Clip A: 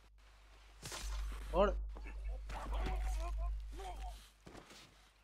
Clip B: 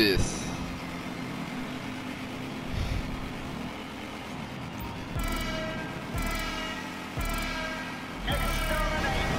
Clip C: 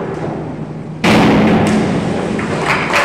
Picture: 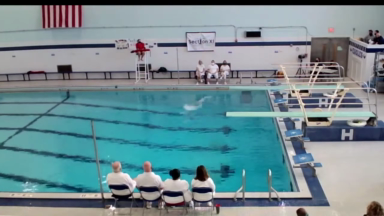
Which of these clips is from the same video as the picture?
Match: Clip C